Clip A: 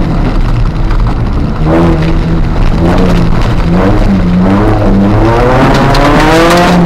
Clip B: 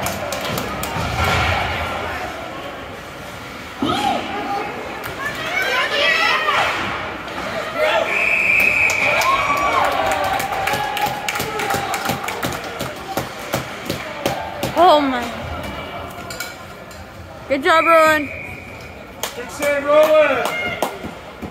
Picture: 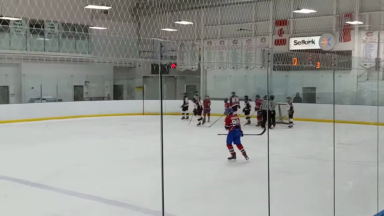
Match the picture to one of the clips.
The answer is B